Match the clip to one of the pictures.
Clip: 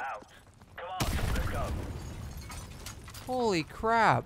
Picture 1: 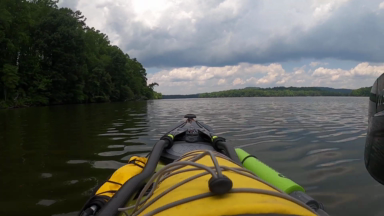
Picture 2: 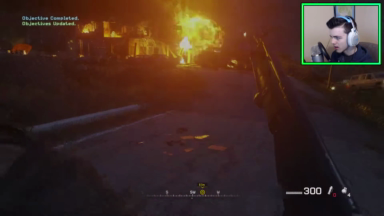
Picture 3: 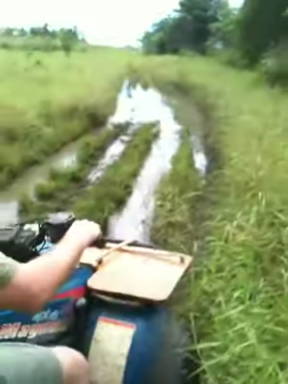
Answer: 2